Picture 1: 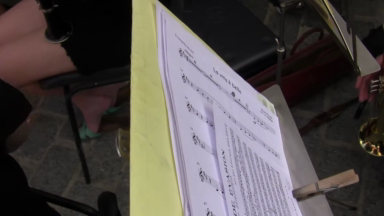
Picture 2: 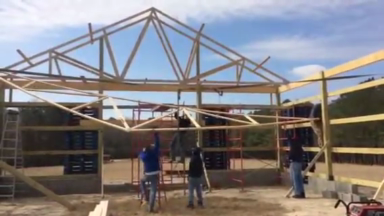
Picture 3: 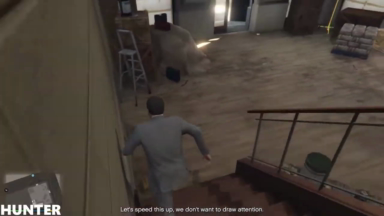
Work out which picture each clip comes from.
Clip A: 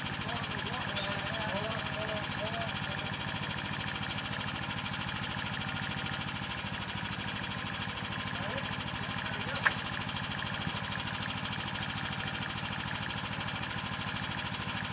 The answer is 2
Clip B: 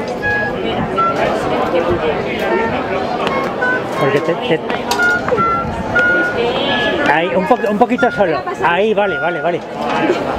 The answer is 1